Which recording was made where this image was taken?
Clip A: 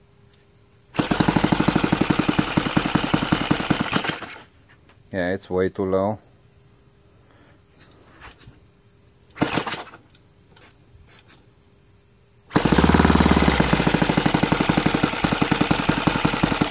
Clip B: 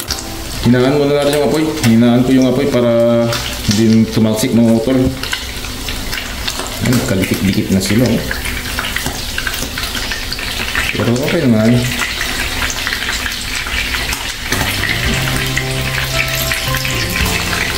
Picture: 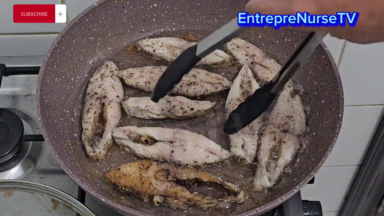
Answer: B